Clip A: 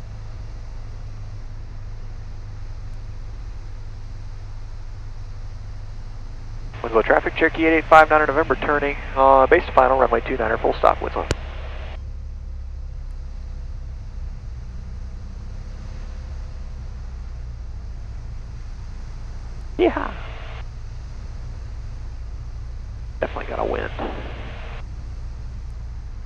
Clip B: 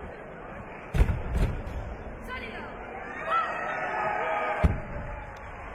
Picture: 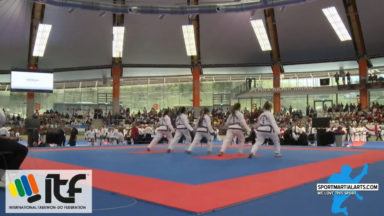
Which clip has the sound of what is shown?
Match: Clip B